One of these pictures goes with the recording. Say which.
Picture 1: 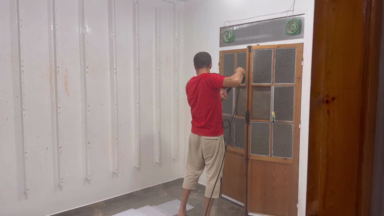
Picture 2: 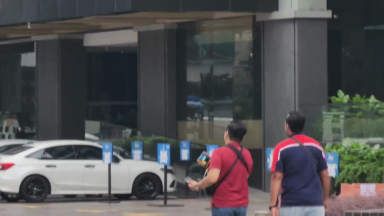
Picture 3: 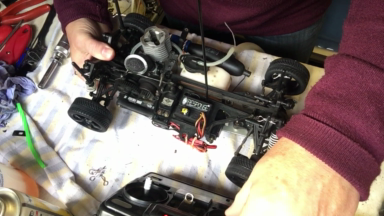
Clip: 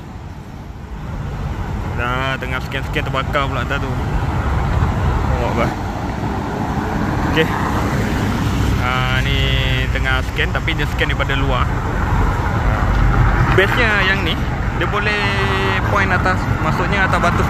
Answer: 2